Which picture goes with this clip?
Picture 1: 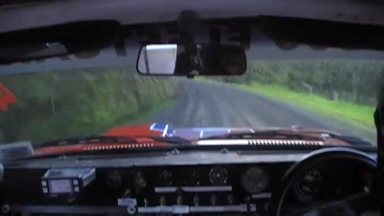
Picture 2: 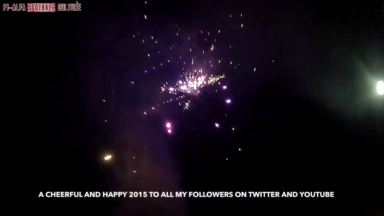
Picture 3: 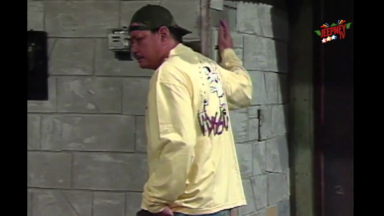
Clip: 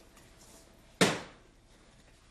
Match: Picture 3